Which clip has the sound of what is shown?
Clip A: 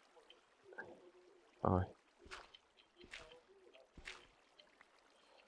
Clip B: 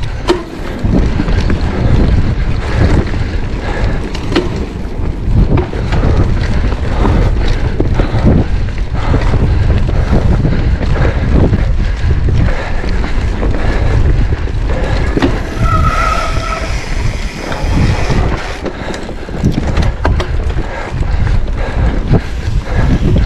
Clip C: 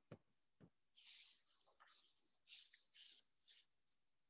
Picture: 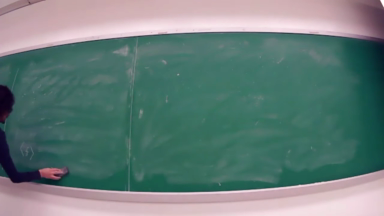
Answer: C